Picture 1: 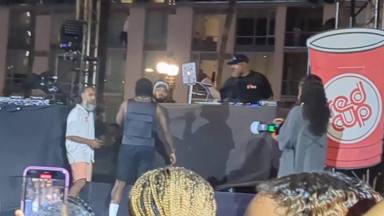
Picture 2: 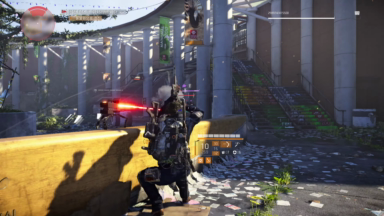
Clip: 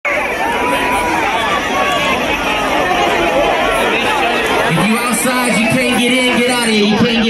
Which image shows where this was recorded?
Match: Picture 1